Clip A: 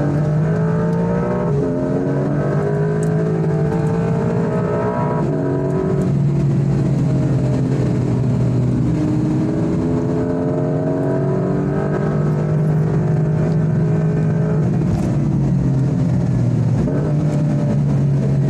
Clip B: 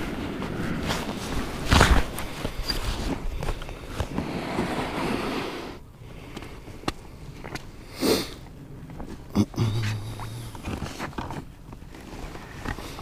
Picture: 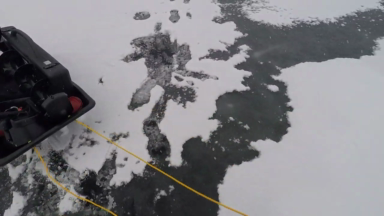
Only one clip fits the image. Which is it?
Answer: B